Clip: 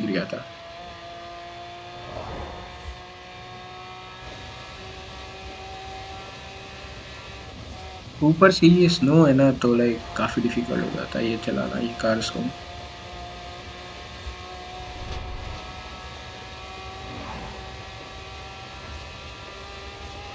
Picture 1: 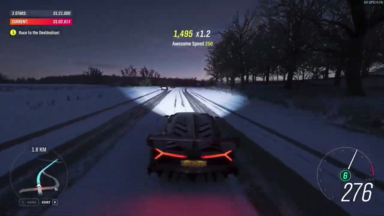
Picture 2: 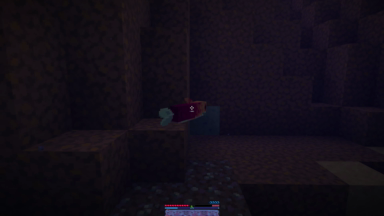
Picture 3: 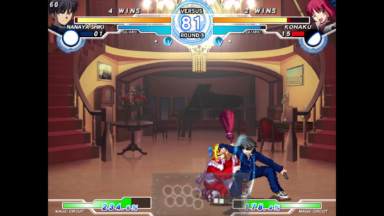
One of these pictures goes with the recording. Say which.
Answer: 1